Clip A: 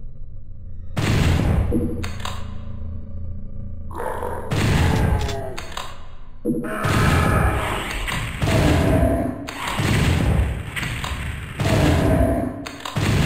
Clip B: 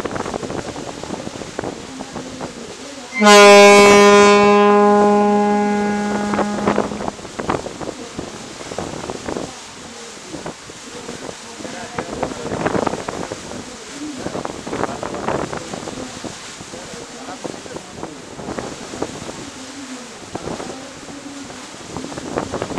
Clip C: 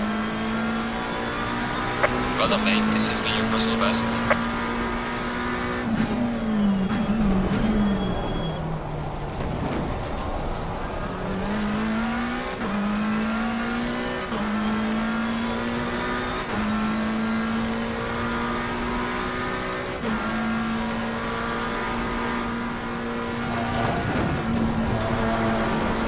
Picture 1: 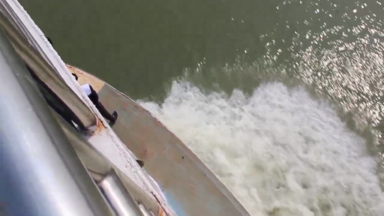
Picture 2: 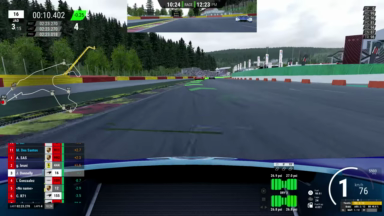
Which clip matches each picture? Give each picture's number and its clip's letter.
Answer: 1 B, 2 C